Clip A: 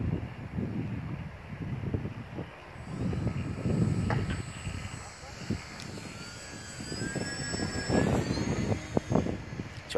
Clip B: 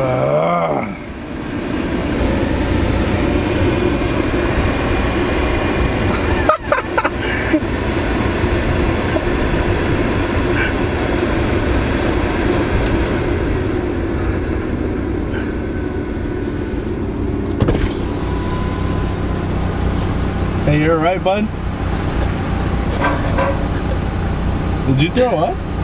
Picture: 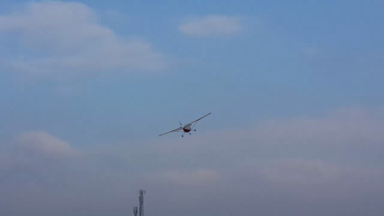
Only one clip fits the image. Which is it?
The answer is A